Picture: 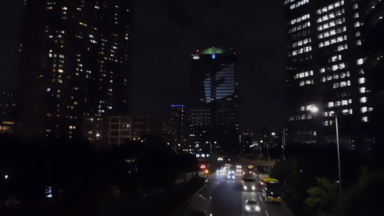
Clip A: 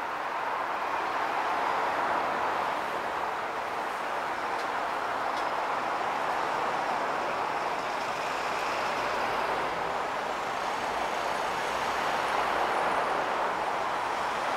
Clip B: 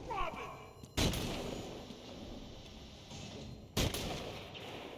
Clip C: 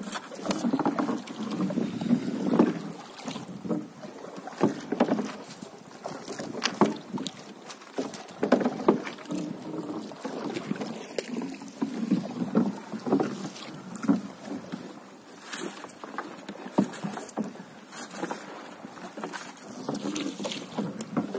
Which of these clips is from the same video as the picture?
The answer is A